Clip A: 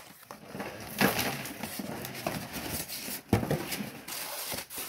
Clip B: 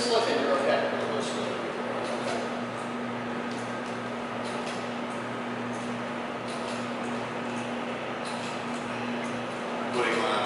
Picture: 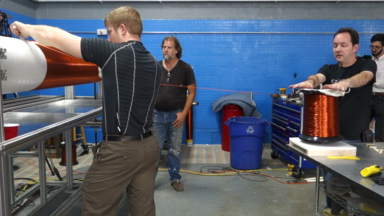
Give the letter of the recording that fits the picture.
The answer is B